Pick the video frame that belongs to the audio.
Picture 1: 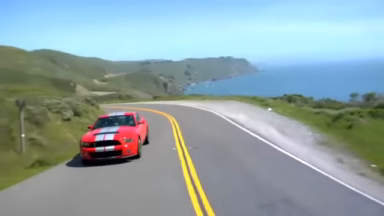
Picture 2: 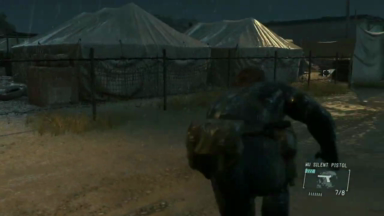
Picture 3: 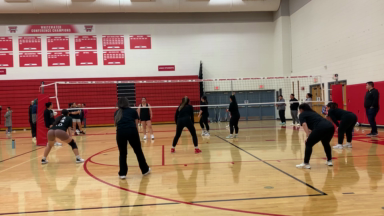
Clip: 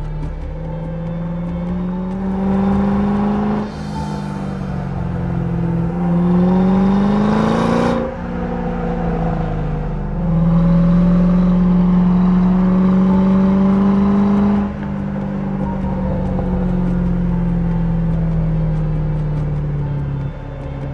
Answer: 1